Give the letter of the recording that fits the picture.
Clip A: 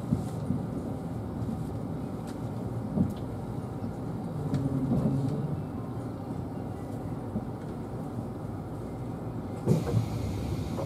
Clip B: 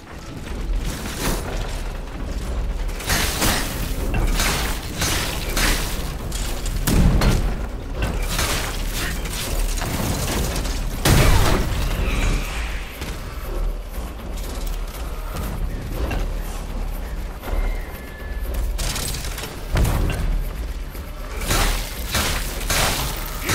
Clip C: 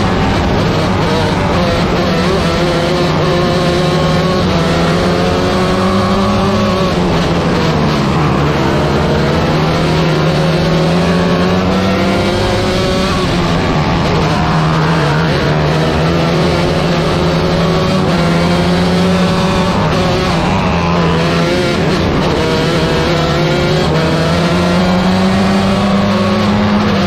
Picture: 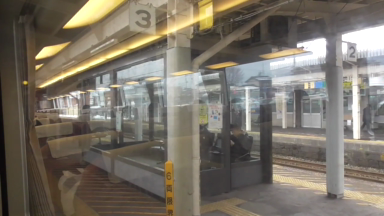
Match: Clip A